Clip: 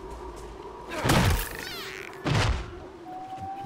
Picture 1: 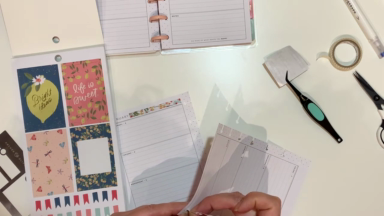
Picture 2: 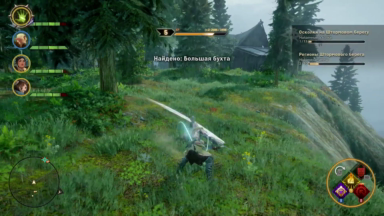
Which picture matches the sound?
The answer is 2